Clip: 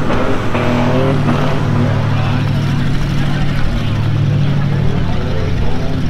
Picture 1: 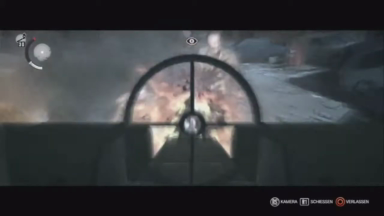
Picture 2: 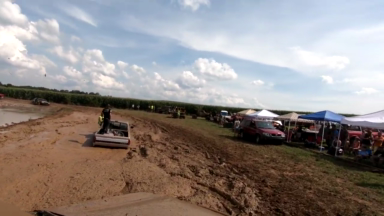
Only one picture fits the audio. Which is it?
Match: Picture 2